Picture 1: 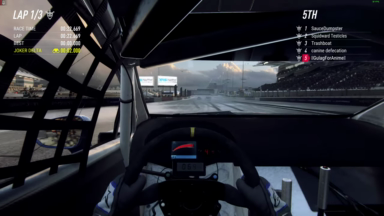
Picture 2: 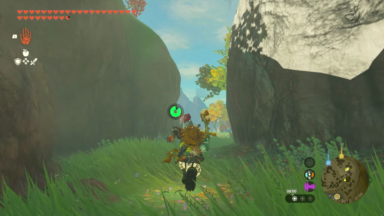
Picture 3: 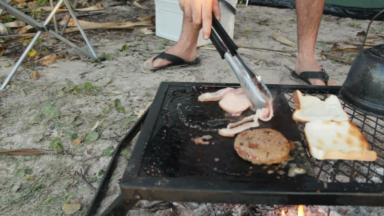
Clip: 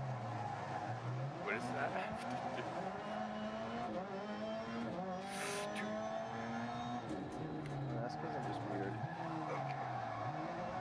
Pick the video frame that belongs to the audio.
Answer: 1